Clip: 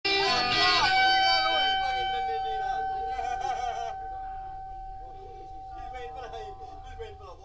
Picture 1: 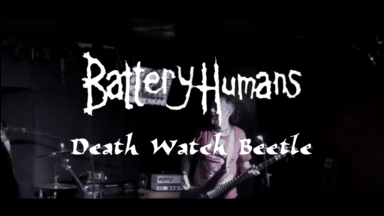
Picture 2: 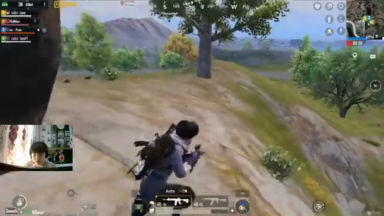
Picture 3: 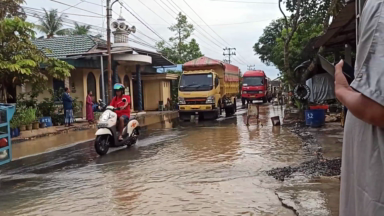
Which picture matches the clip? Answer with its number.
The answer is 1